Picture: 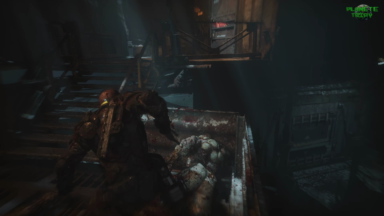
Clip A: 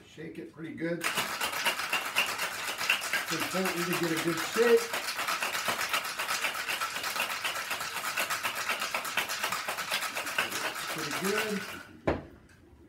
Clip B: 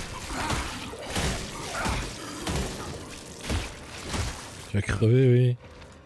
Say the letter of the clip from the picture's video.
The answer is B